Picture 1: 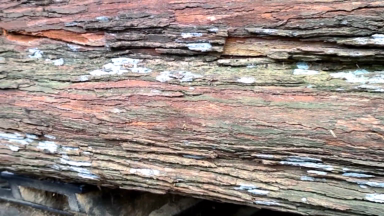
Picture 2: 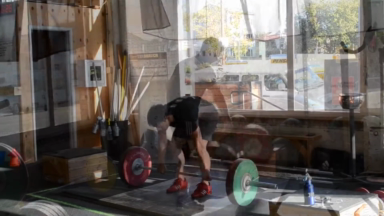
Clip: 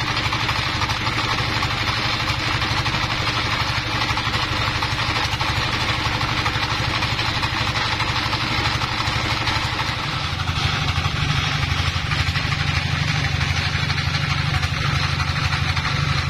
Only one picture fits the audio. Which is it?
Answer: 1